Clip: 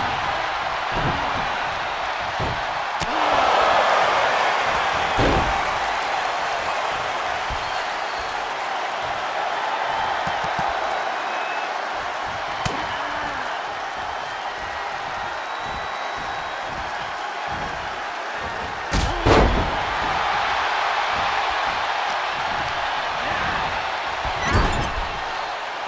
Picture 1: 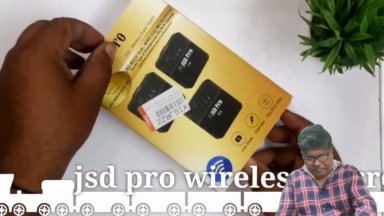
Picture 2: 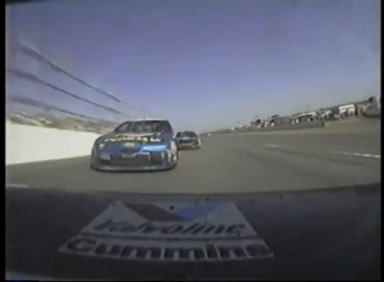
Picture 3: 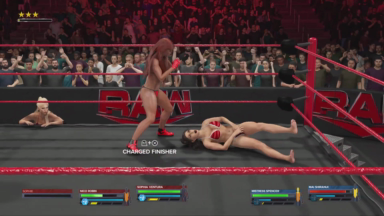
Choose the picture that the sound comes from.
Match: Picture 3